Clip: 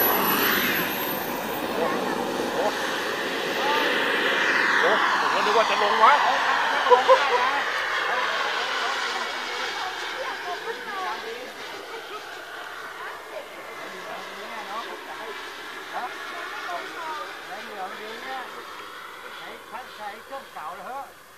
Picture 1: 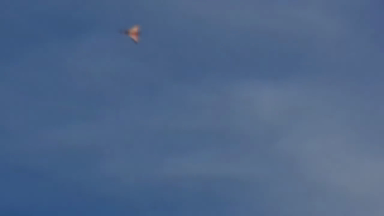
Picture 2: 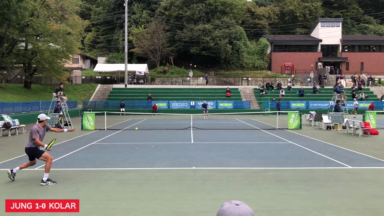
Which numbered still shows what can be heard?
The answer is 1